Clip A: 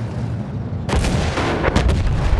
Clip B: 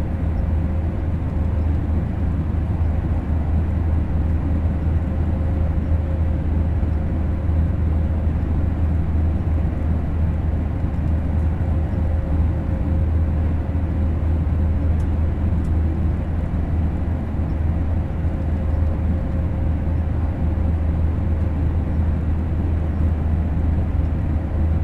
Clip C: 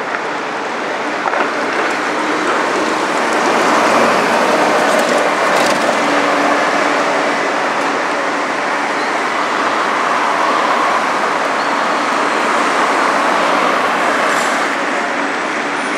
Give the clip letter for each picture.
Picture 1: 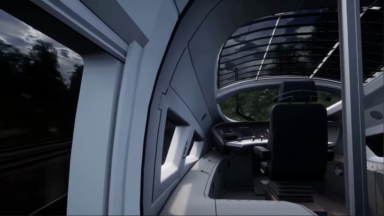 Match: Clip B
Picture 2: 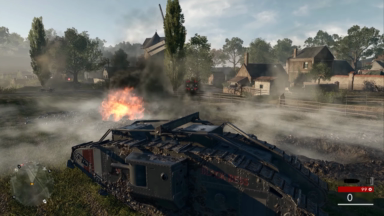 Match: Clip A